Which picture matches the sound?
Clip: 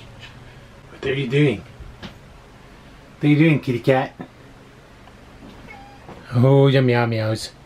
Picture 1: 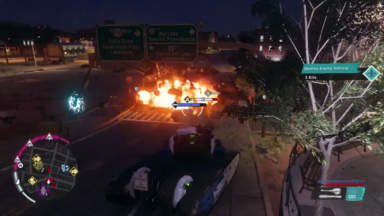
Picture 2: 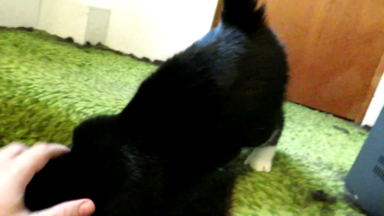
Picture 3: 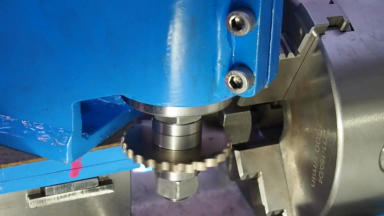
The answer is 2